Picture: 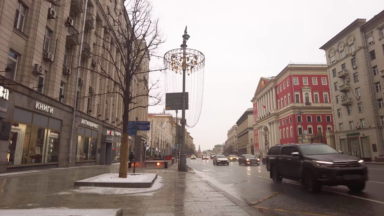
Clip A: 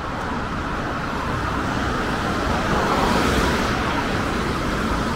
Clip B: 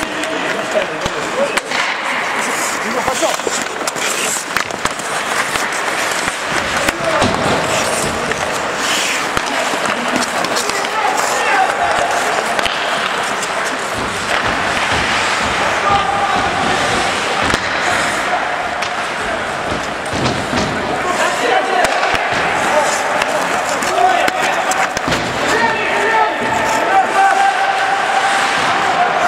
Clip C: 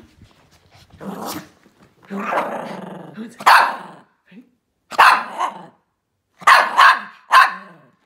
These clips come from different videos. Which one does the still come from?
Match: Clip A